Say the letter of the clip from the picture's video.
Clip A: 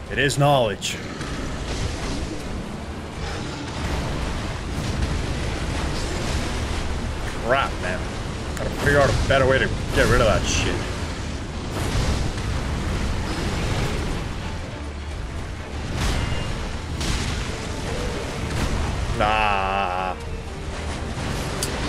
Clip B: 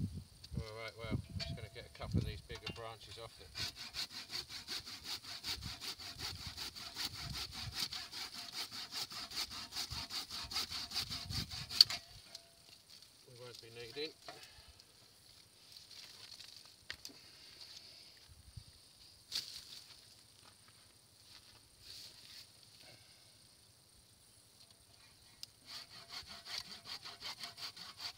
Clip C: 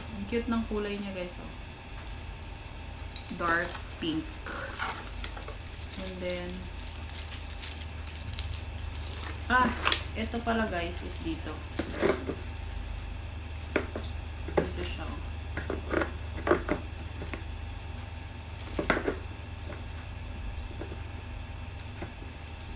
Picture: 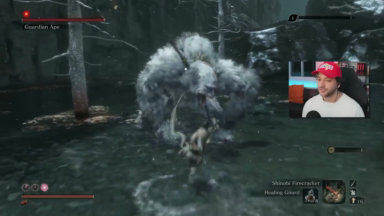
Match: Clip A